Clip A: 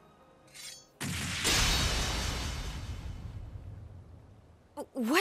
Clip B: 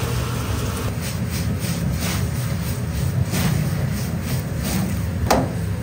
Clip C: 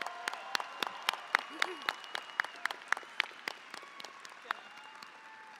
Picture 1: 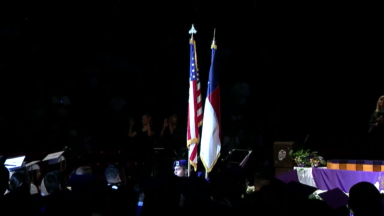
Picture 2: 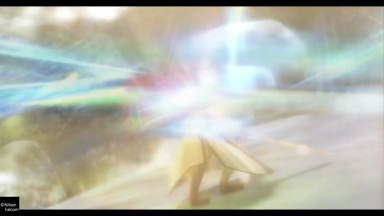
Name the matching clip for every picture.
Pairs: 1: C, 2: A